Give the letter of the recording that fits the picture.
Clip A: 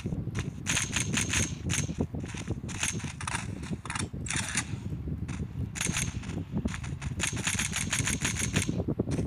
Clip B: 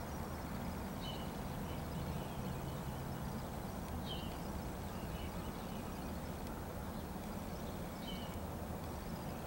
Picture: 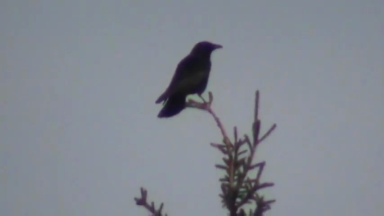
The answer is B